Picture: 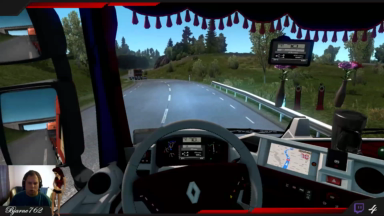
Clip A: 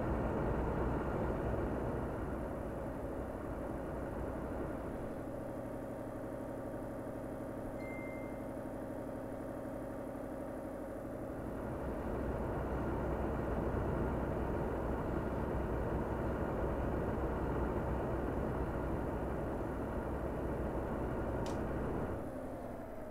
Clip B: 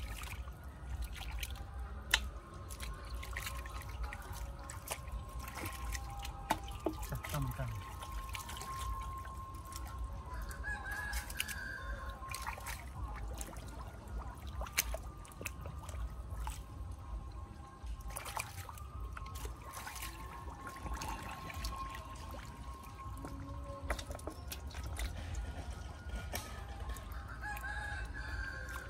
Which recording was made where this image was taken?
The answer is A